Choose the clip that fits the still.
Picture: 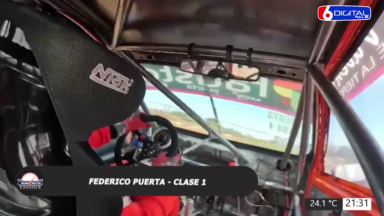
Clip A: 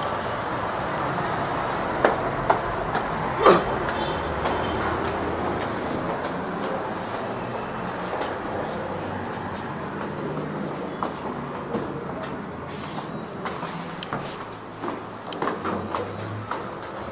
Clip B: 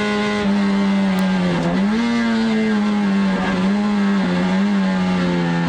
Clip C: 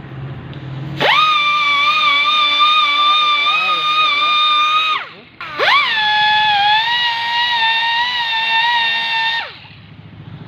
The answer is B